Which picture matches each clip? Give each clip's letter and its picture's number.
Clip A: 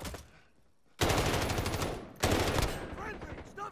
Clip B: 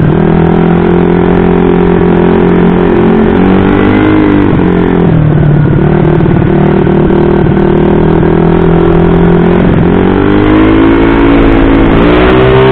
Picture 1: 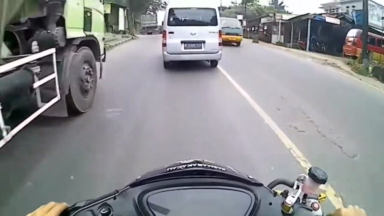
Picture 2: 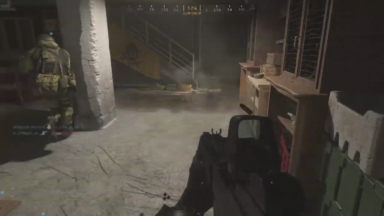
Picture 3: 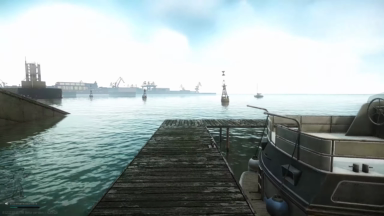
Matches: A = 2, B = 1